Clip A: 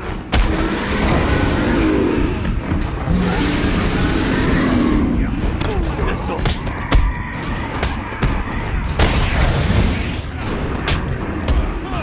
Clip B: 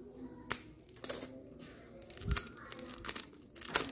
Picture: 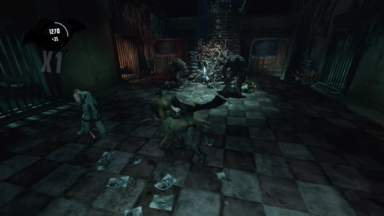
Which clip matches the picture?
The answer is A